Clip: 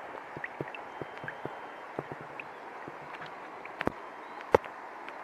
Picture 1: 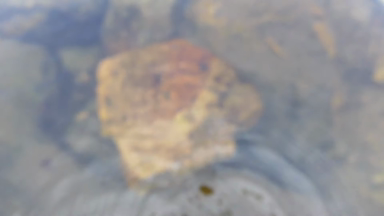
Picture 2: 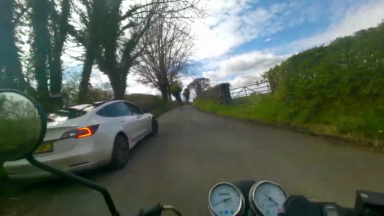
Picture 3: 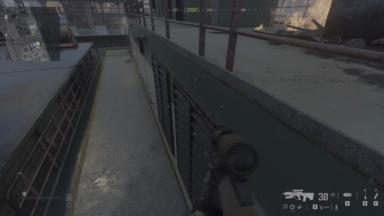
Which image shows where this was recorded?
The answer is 1